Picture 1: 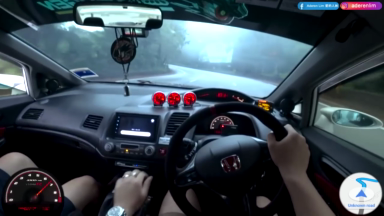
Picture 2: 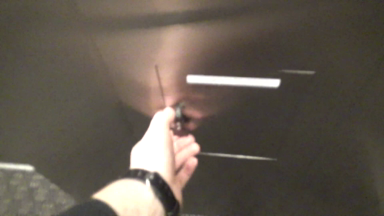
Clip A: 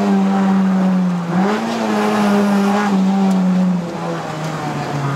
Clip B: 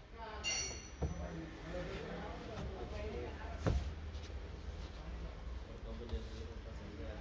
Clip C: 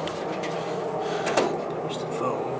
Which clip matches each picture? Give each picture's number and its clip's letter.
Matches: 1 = A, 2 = C